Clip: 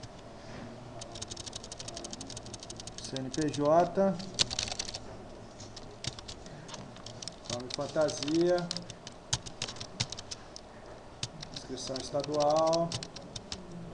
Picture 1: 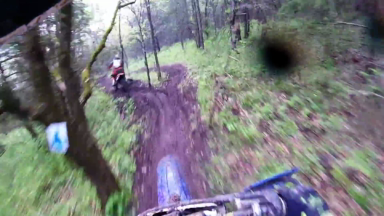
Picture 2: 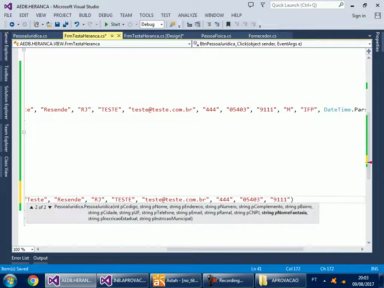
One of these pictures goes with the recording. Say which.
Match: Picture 2